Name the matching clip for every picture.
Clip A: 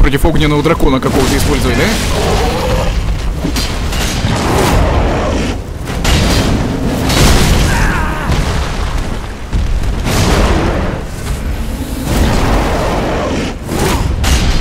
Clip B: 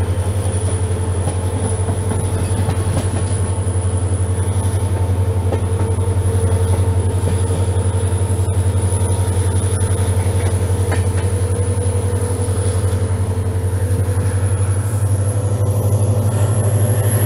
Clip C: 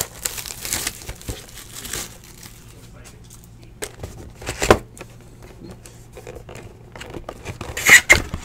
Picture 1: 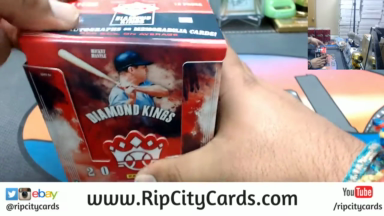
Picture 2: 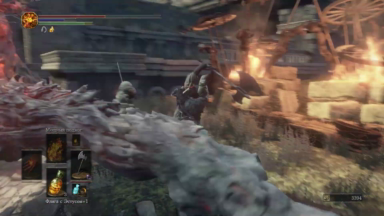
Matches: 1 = C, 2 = A